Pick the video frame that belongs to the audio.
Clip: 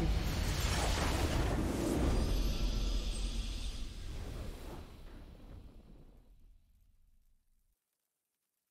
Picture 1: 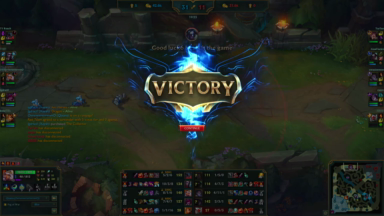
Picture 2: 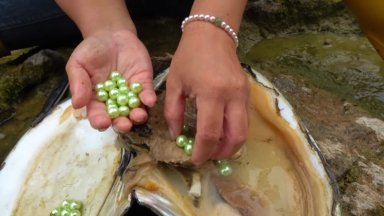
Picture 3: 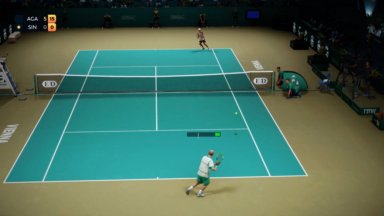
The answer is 1